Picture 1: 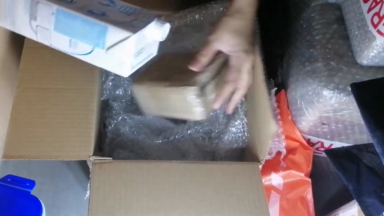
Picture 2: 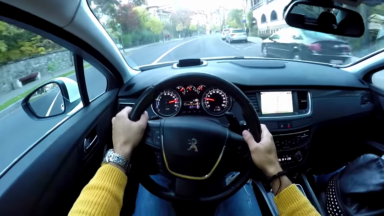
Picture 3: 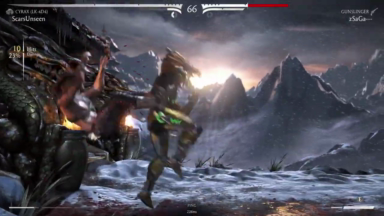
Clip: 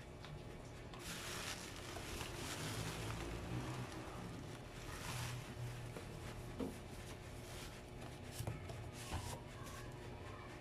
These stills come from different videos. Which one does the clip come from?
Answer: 1